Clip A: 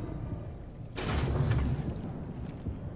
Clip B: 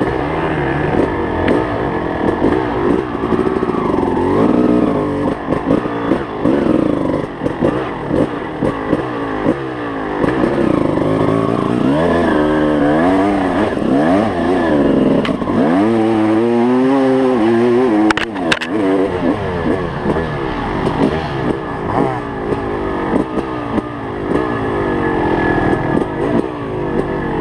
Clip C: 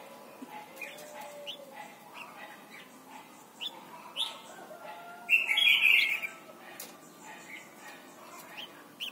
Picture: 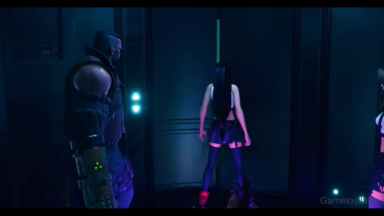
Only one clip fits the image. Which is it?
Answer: A